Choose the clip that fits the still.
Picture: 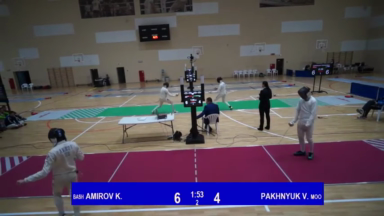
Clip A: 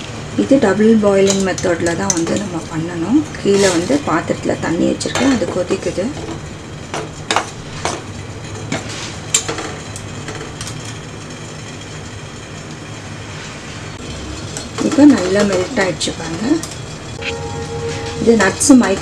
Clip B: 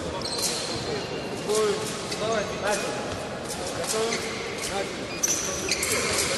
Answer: B